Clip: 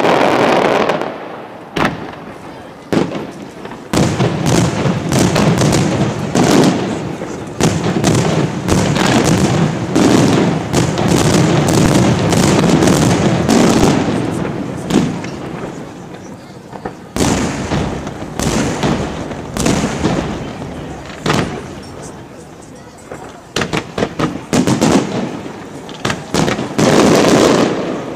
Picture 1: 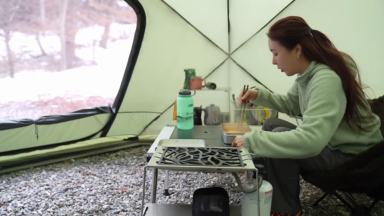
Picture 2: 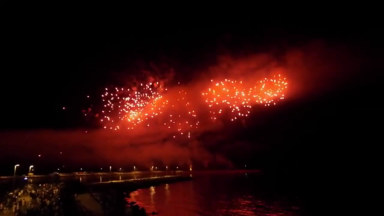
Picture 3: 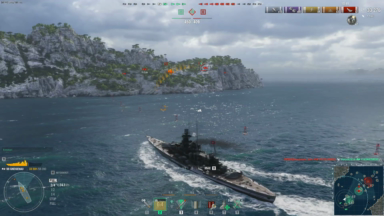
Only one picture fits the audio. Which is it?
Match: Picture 2